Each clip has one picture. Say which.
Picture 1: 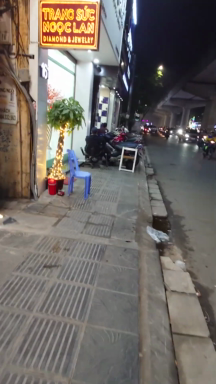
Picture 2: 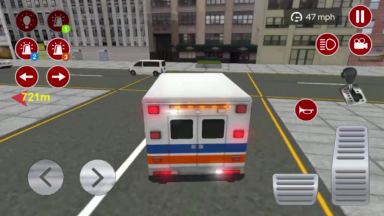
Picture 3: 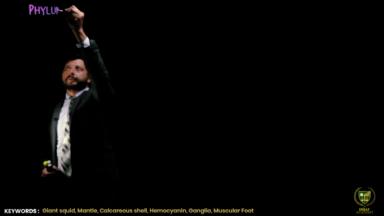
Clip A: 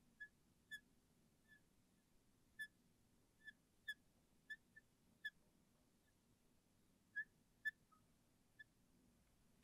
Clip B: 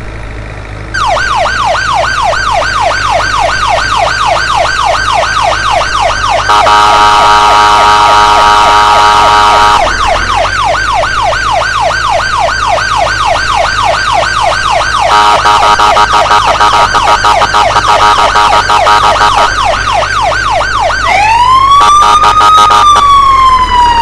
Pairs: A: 3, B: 2